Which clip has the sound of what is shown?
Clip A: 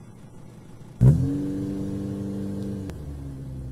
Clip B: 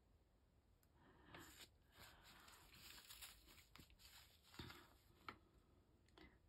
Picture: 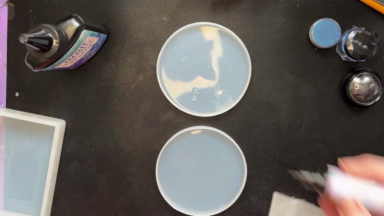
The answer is B